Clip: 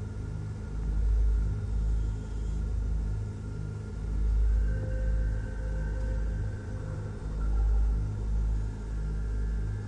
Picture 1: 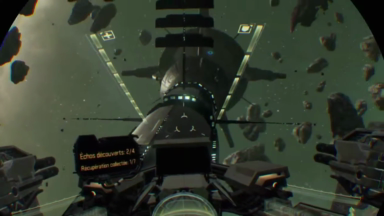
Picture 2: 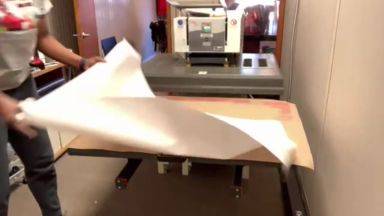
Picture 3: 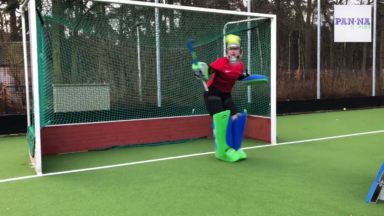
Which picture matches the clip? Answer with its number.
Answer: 1